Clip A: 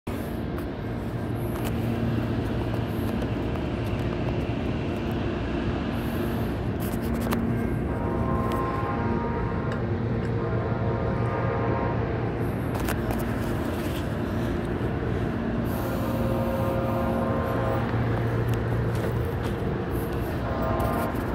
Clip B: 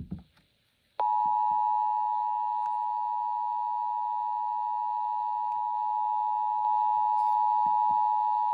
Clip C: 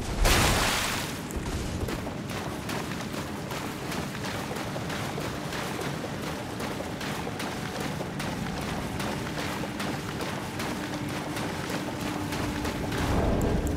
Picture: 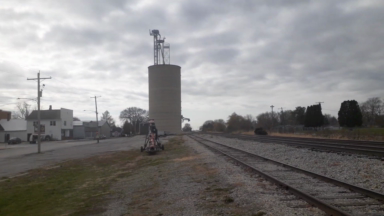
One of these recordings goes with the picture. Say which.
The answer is A